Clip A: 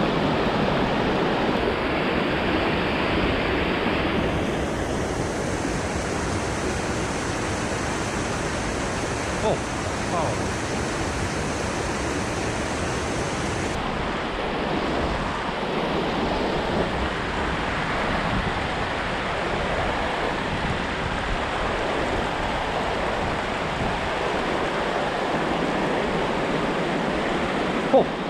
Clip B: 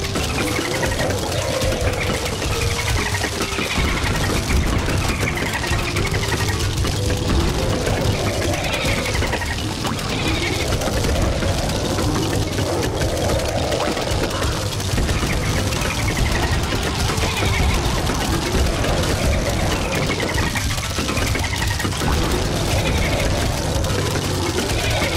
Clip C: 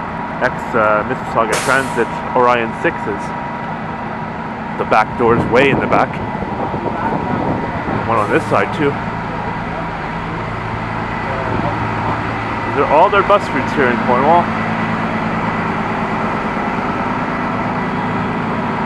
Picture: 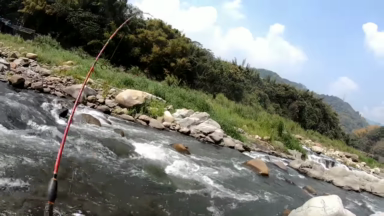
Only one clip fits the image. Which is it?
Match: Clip A